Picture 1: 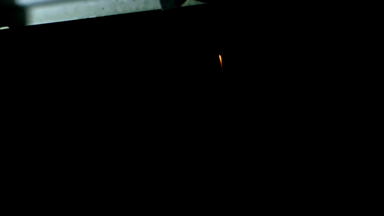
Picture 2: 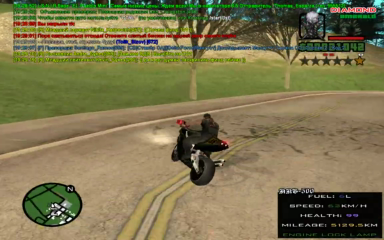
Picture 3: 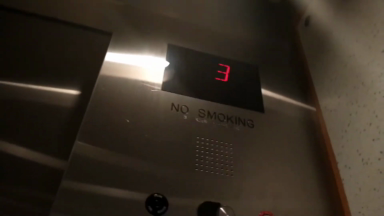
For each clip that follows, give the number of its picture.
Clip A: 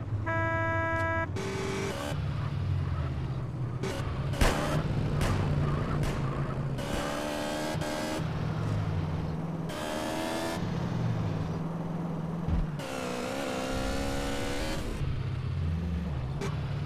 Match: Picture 2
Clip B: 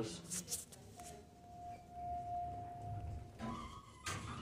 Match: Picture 3